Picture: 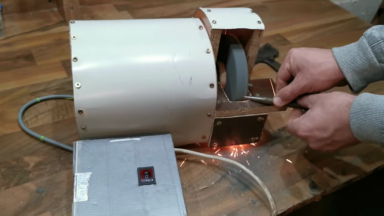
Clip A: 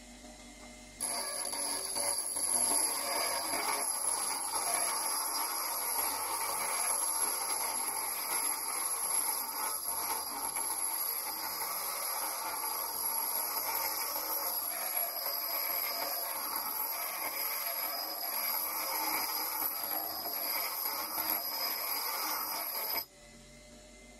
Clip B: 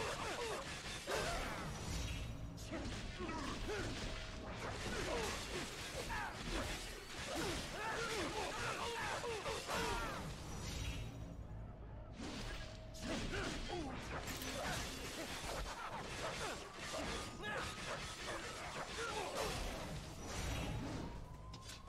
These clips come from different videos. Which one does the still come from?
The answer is A